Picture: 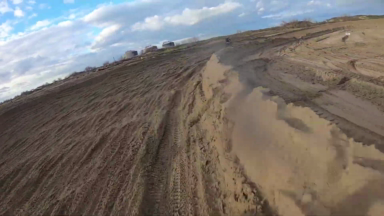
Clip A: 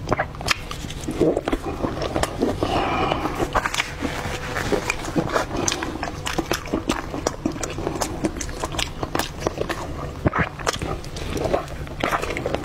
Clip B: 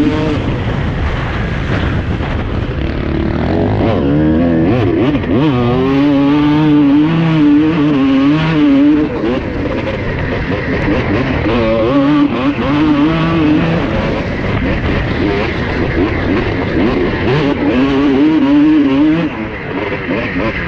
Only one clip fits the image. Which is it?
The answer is B